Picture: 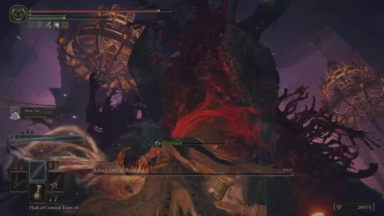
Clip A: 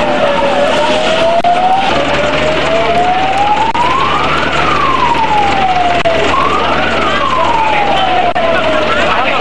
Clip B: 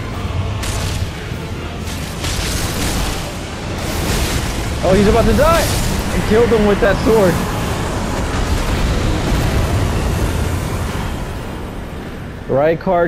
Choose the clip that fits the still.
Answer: B